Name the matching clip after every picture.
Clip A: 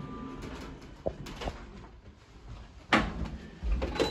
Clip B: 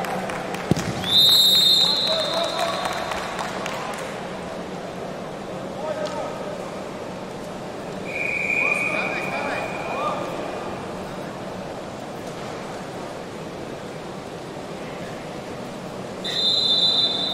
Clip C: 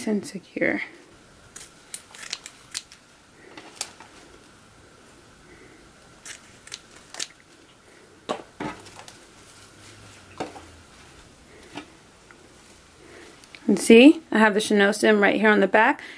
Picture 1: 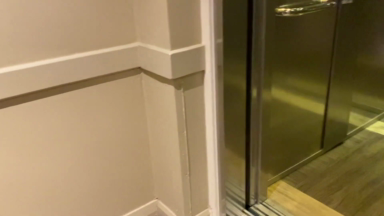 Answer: A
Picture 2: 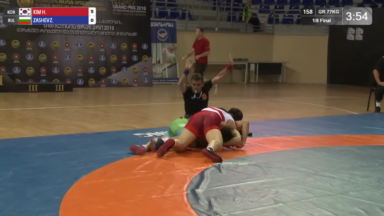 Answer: B